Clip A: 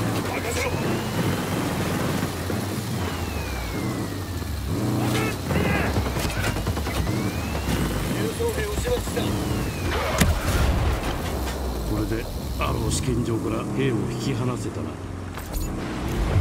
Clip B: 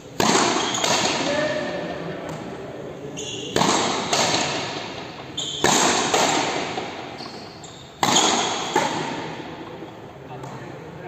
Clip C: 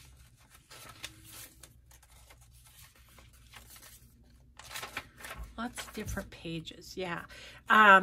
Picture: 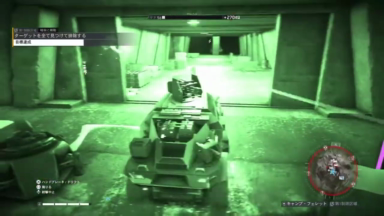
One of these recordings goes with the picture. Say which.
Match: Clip A